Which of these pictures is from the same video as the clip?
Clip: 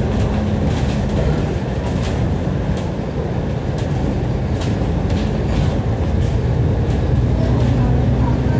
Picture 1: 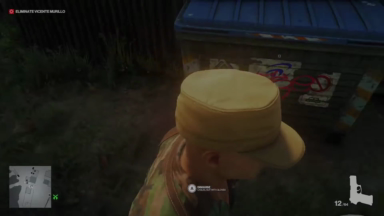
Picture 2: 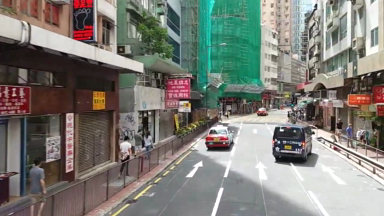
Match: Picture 2